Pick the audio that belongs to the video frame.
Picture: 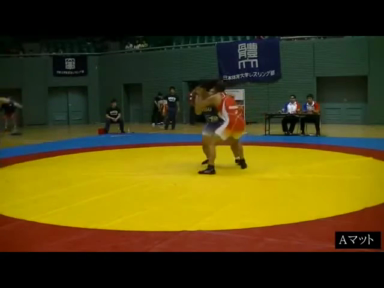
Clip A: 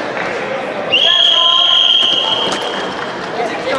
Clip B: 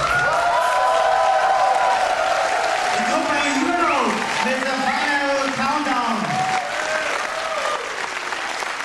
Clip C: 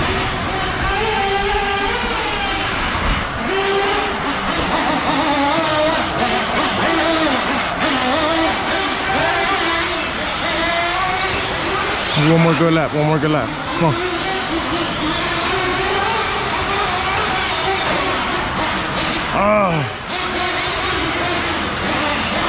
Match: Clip A